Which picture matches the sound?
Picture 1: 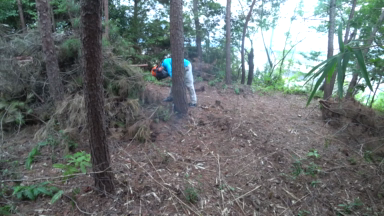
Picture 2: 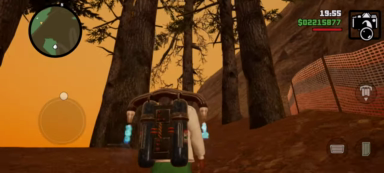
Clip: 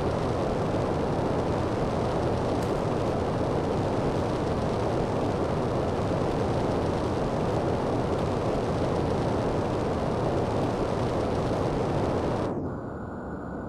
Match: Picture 2